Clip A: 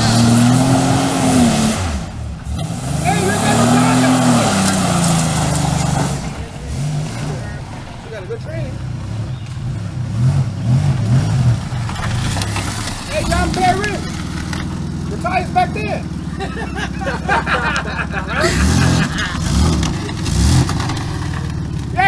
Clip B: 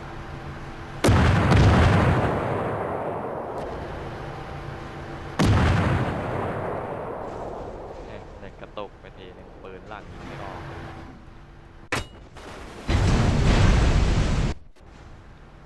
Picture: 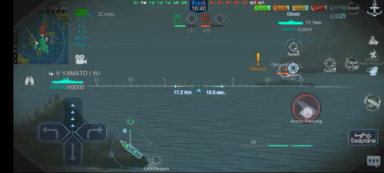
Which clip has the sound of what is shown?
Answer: B